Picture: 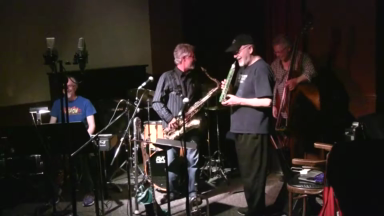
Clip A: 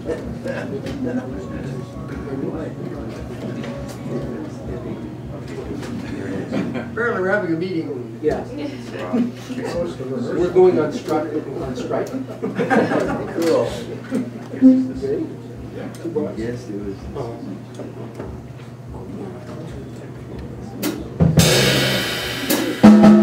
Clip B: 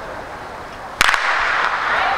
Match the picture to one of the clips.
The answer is A